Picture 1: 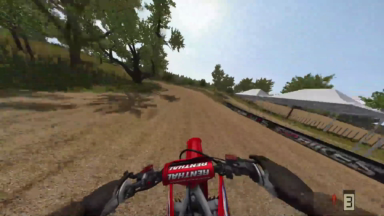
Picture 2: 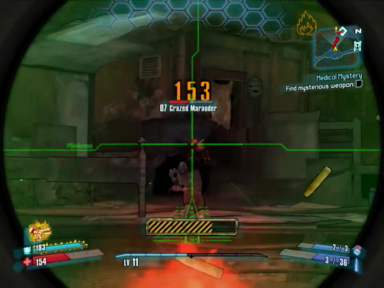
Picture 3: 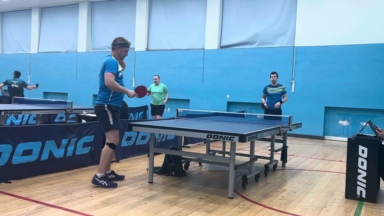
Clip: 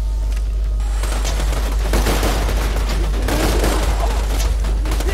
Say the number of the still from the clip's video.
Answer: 2